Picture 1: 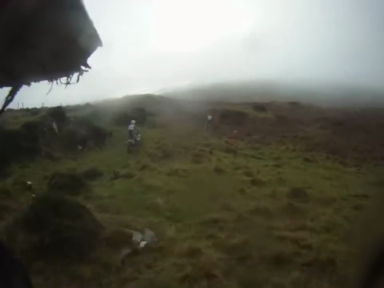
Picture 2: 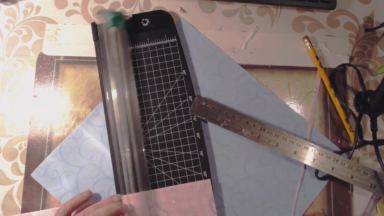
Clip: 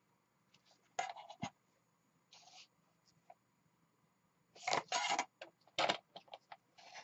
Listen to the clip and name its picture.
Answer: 2